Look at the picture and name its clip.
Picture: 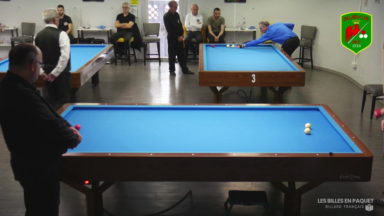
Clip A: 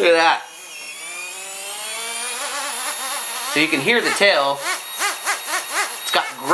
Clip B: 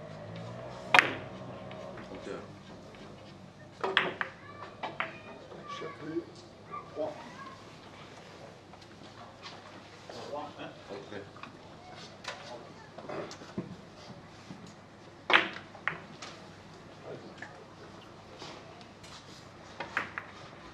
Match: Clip B